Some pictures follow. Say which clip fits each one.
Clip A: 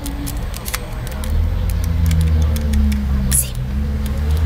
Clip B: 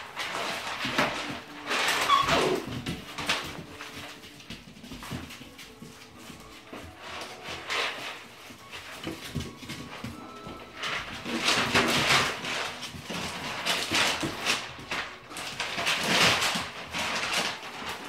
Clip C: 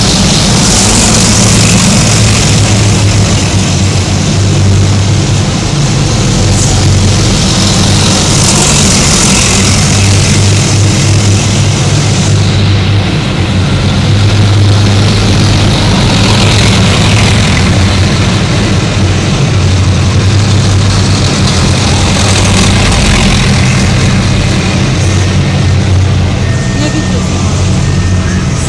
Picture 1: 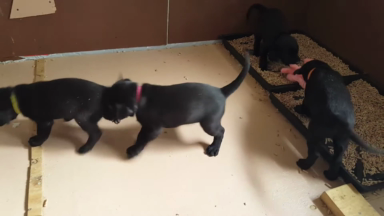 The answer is B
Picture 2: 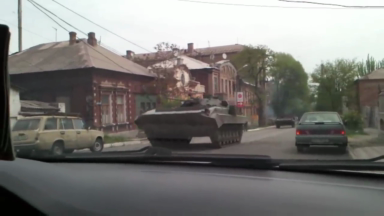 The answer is C